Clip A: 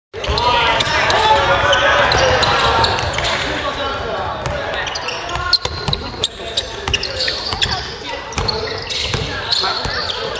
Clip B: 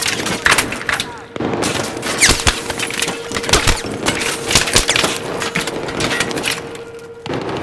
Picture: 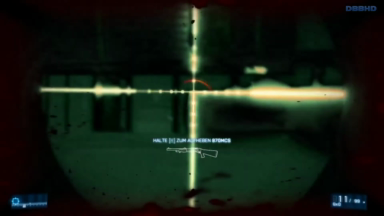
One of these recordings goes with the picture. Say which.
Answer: B